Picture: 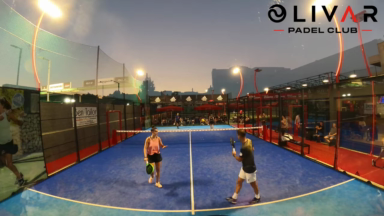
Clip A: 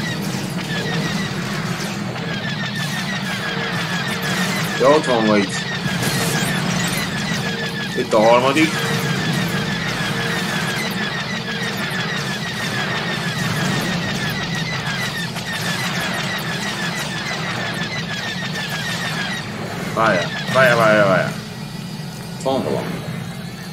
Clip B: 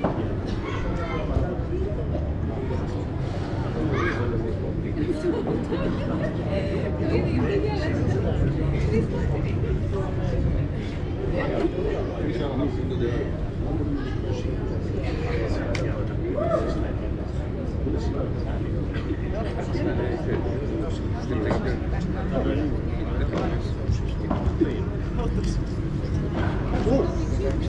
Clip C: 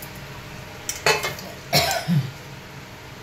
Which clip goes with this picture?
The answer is B